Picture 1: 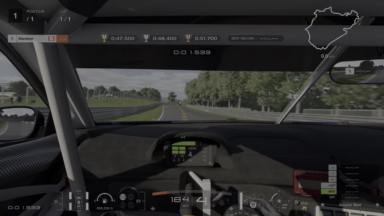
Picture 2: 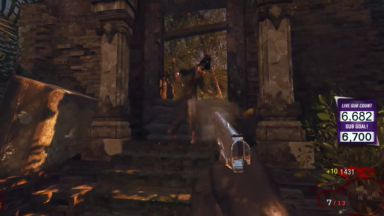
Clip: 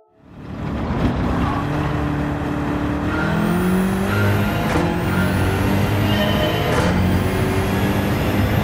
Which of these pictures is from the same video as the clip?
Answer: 1